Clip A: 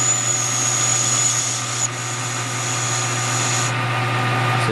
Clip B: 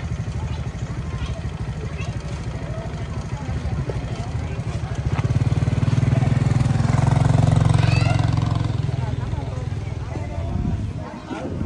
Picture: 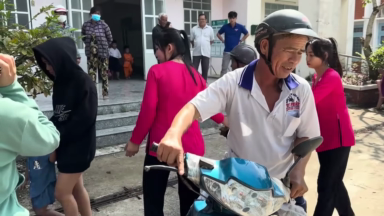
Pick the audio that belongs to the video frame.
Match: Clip B